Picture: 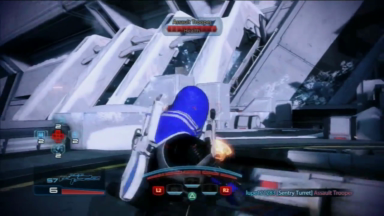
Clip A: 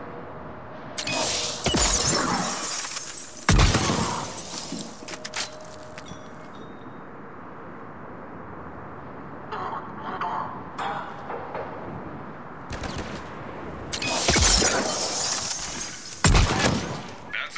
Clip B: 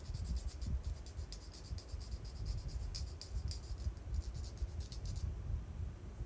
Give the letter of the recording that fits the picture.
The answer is A